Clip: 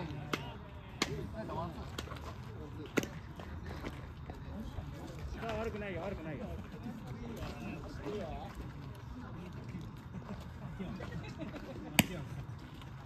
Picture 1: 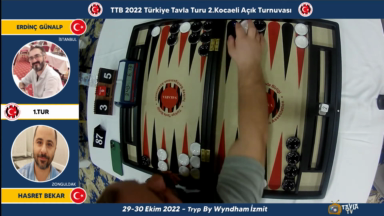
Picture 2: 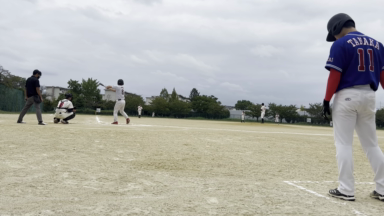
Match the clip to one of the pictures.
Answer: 2